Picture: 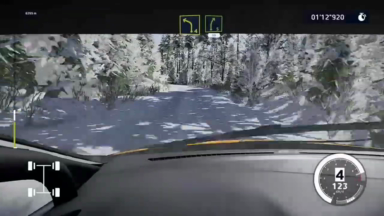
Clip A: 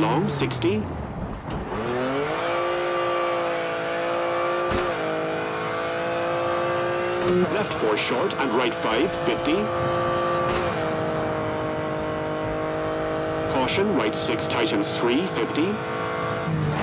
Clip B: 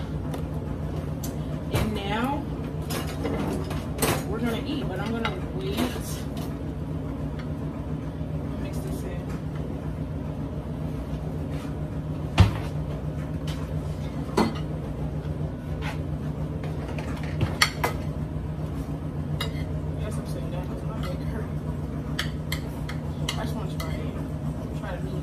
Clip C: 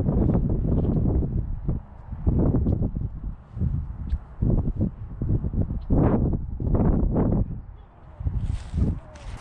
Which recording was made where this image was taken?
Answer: A